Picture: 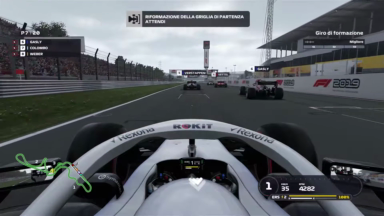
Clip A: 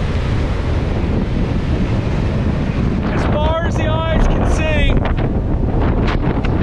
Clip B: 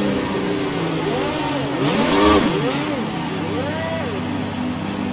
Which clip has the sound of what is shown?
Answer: B